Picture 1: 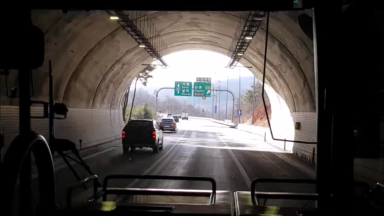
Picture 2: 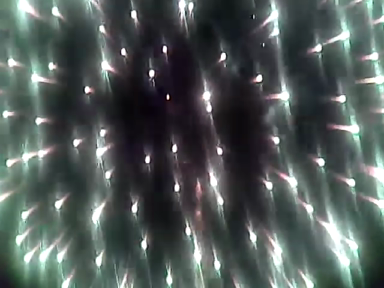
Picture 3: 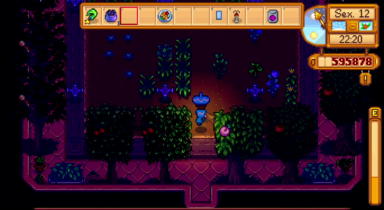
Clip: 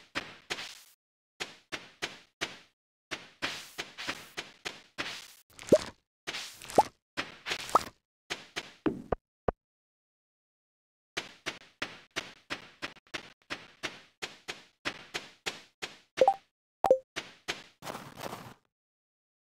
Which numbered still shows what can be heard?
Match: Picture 3